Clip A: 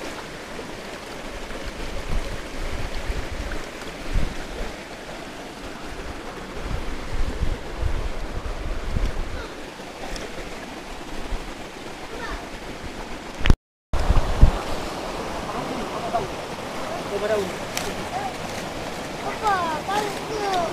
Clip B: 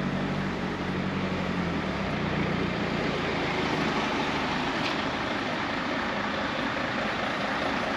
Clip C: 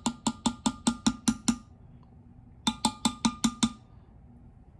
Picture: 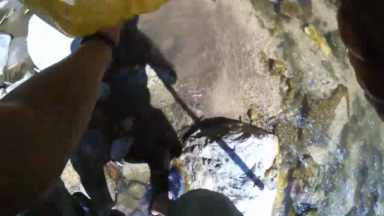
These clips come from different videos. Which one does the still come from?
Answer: A